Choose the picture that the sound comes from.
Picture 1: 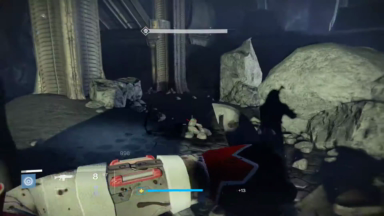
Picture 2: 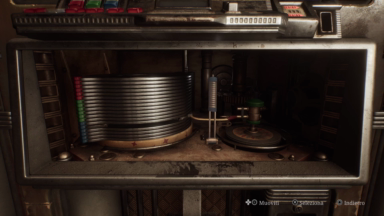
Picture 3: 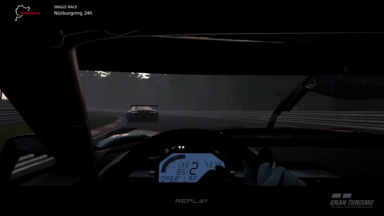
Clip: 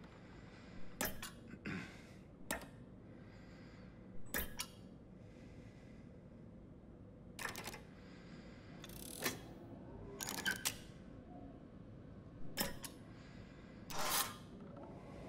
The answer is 2